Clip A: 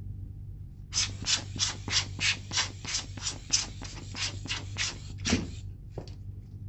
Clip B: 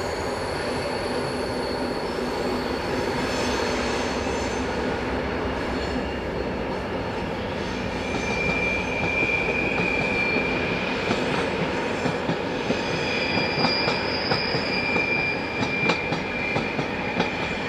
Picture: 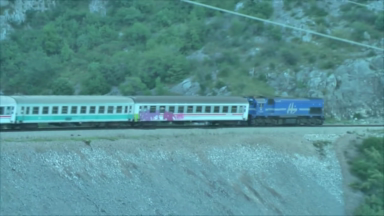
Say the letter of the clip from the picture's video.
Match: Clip B